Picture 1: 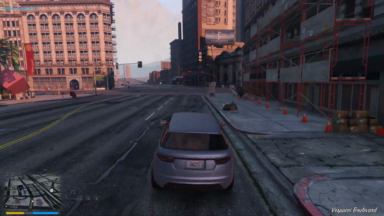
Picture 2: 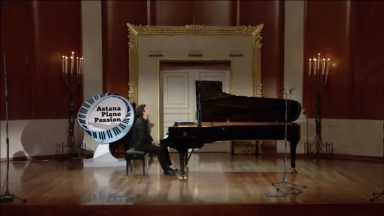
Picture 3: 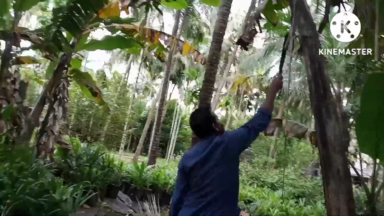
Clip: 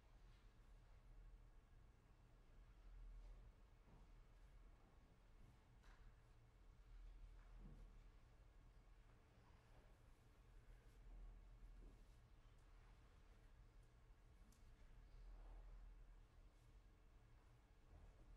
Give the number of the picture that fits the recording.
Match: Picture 2